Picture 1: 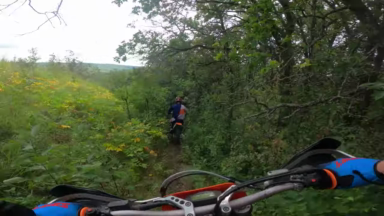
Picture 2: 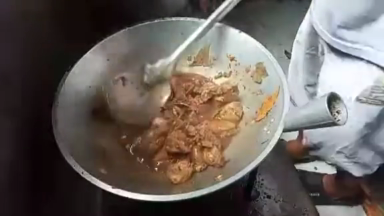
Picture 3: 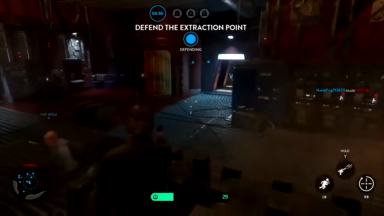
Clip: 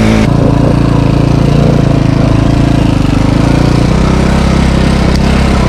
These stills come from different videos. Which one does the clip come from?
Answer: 1